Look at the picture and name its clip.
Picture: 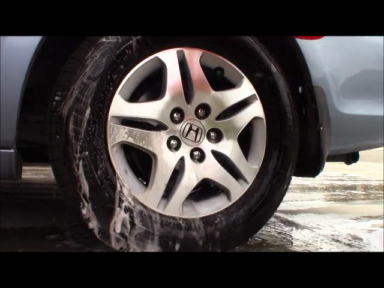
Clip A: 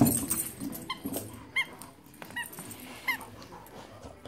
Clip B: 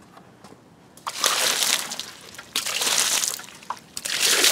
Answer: B